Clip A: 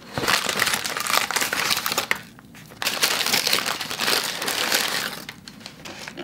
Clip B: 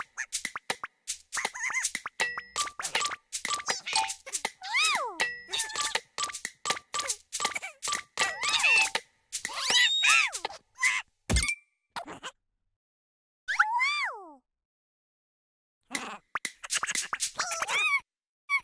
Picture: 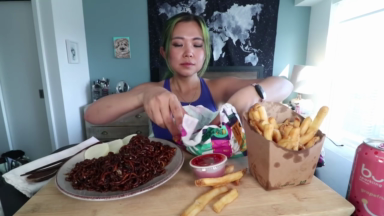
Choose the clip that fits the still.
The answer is A